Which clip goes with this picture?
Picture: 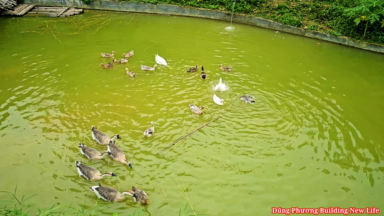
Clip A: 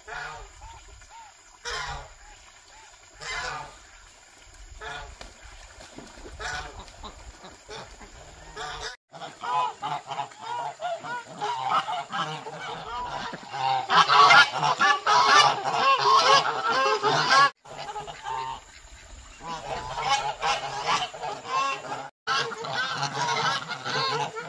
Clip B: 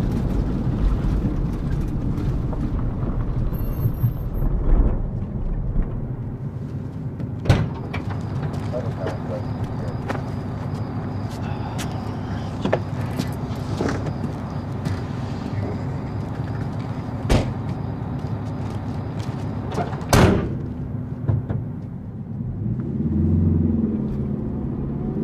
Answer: A